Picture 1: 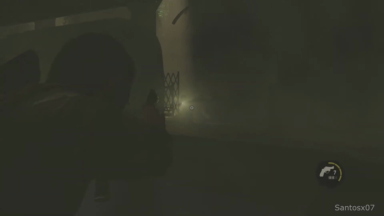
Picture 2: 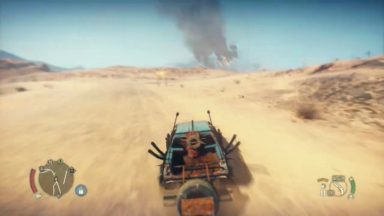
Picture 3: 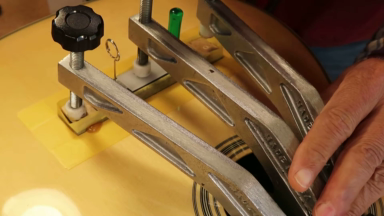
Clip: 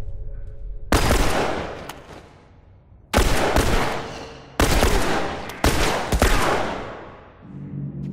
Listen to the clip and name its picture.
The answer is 1